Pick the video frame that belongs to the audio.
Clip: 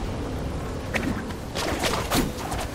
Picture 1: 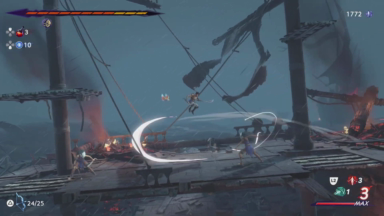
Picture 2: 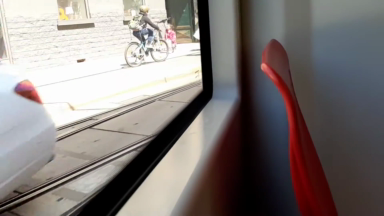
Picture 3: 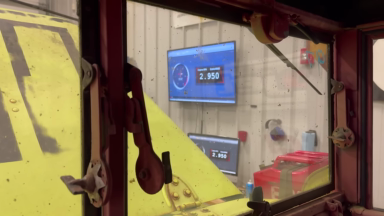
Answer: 1